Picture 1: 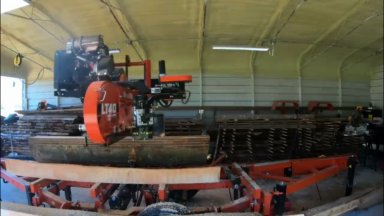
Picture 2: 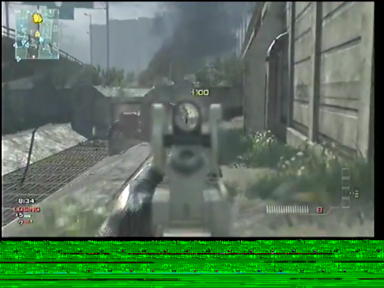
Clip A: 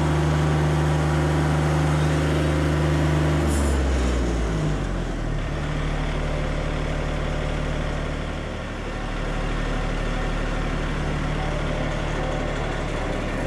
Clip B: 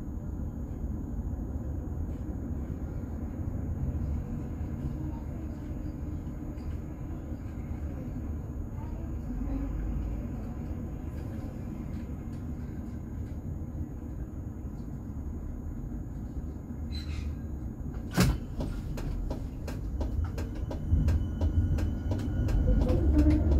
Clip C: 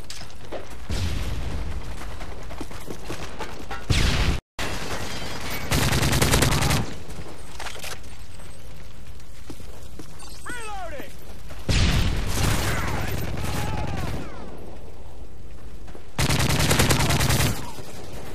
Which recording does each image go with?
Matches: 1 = A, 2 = C